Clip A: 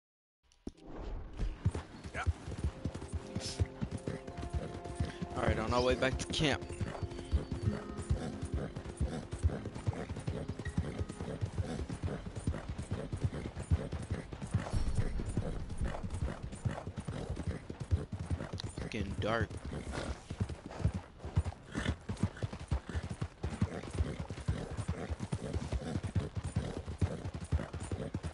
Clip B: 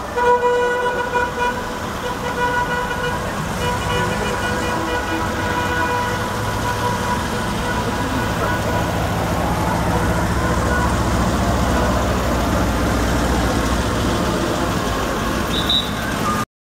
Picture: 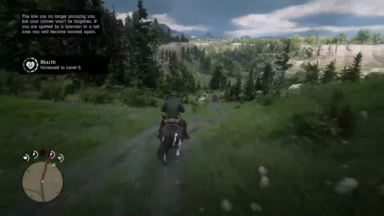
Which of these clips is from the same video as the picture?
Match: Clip A